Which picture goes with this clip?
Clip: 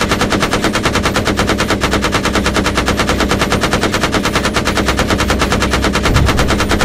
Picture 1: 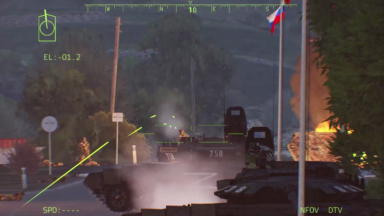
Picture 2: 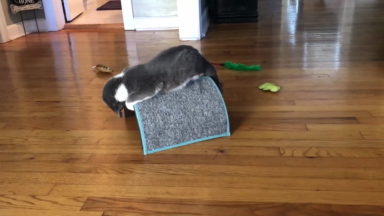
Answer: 1